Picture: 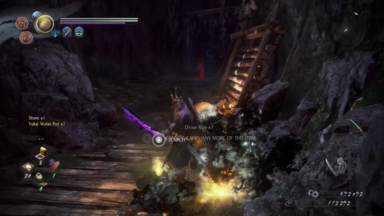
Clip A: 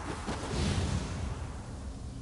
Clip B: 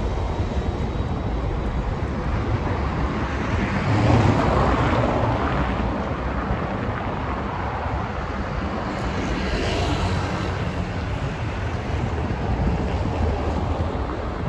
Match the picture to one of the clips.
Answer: A